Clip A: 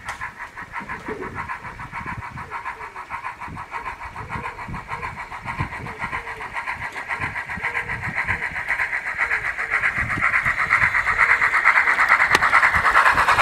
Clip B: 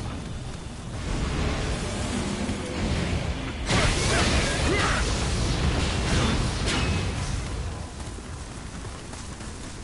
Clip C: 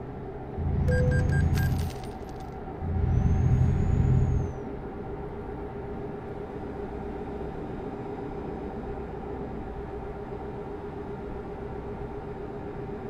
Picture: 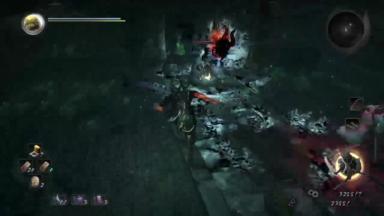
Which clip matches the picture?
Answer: B